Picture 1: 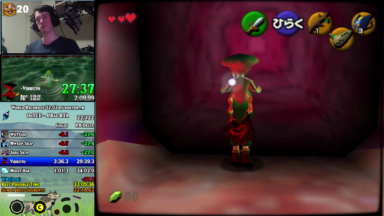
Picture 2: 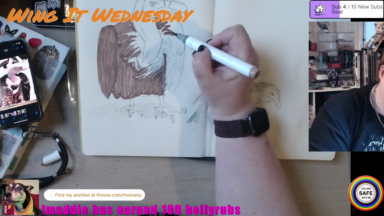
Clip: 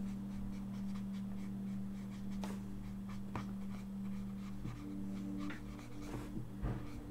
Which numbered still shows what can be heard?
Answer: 2